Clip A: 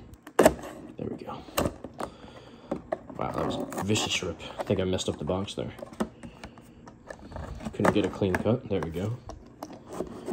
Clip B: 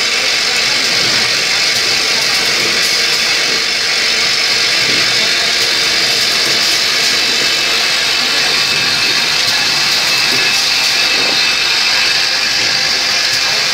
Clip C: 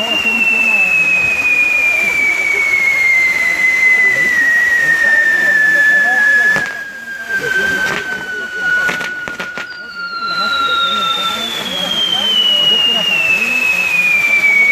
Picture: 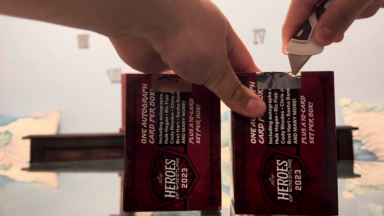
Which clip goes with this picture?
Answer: A